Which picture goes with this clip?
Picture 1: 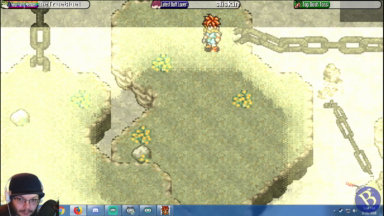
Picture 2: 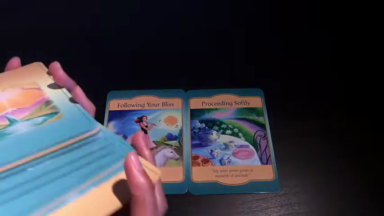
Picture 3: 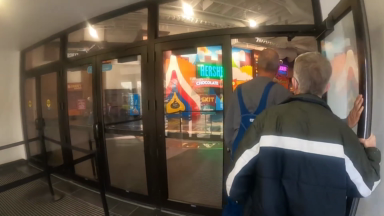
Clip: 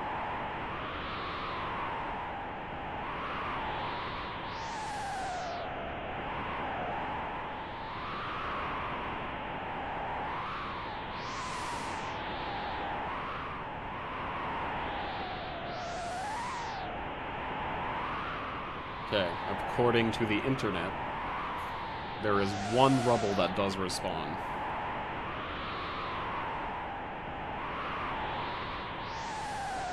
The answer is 1